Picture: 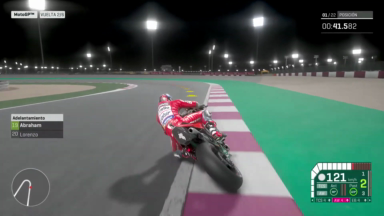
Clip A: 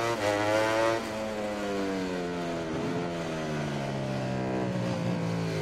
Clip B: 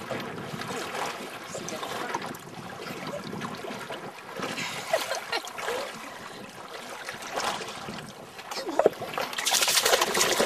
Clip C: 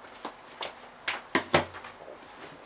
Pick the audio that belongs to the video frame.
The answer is A